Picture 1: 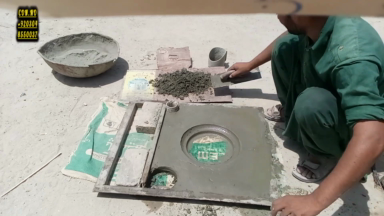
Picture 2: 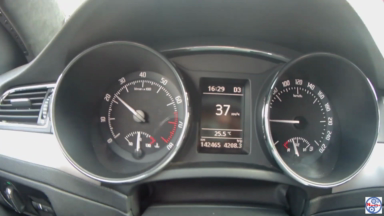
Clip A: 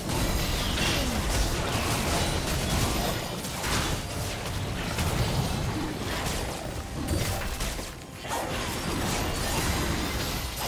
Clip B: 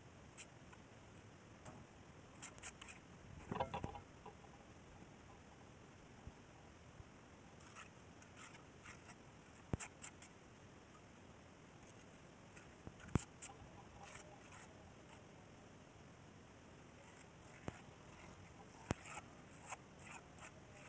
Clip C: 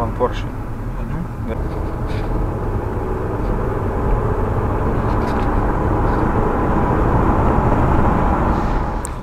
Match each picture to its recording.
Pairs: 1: B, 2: C